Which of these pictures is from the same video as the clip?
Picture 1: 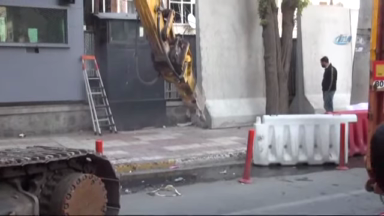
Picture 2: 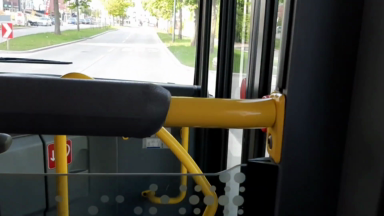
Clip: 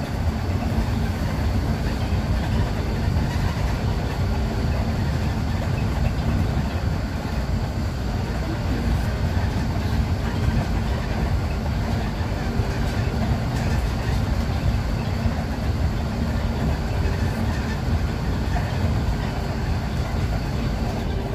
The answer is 2